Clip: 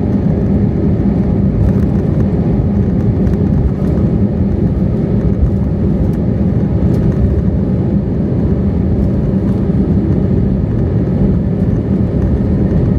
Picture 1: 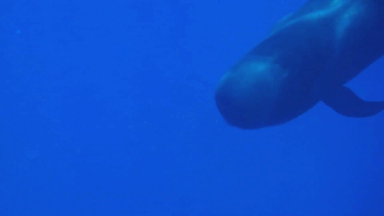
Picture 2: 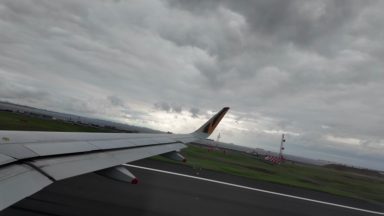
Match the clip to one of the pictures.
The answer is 2